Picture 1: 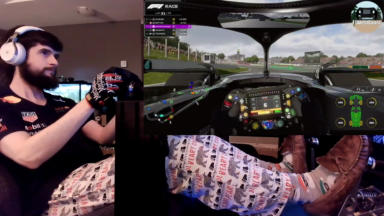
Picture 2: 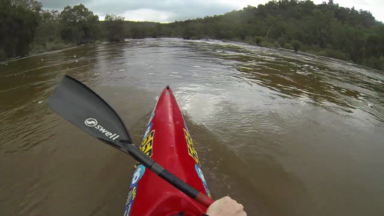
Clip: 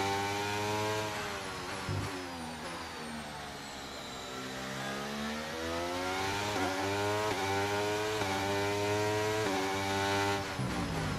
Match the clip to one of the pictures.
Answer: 1